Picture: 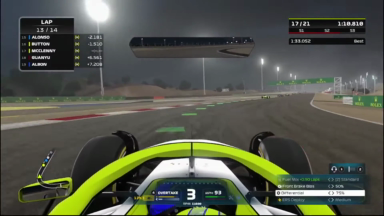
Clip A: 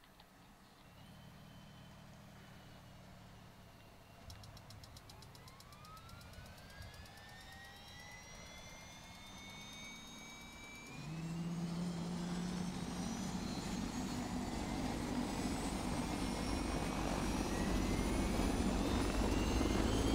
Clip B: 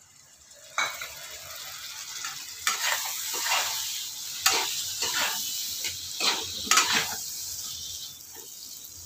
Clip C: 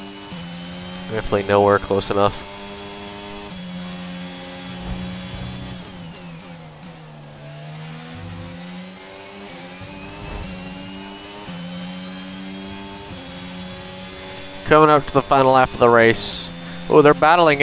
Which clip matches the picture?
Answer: C